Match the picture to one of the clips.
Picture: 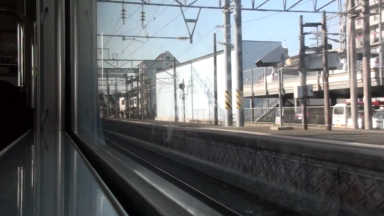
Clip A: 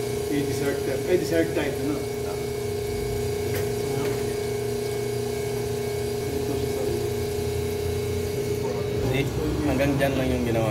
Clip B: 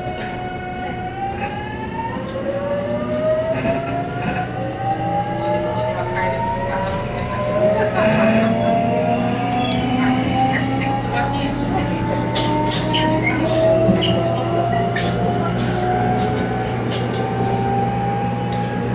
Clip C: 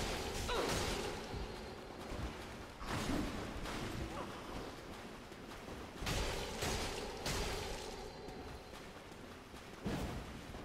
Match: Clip B